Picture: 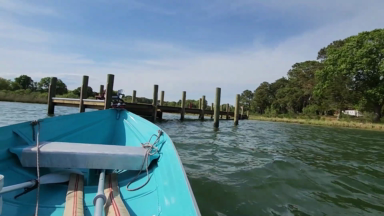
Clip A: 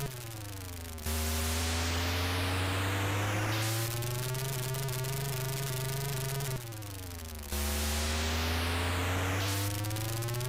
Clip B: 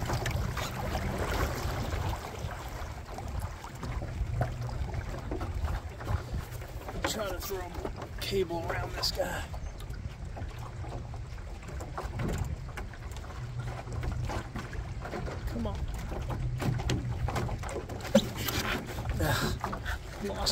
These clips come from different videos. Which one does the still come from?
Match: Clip B